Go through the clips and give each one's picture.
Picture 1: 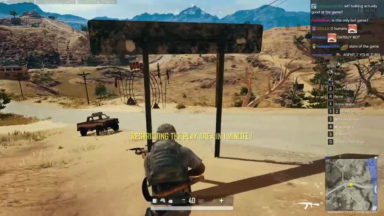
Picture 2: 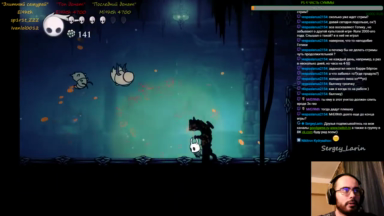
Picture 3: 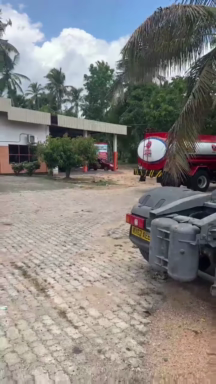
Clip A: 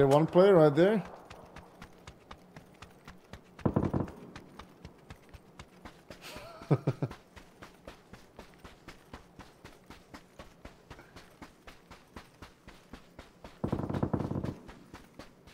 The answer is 1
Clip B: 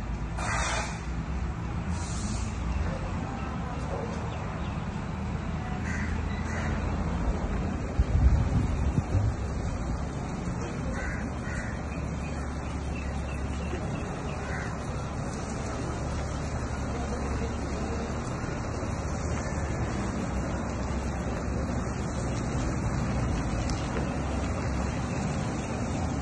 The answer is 3